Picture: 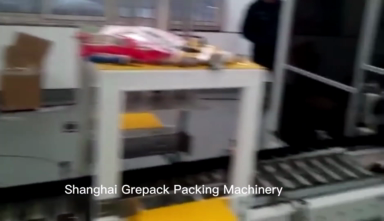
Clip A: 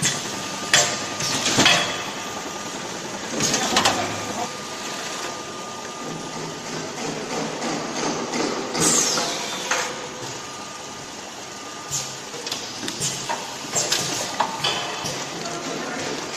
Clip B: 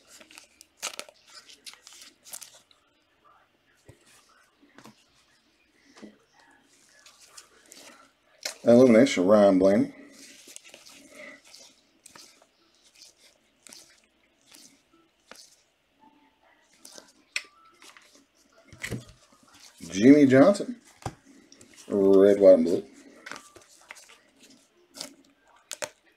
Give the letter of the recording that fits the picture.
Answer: A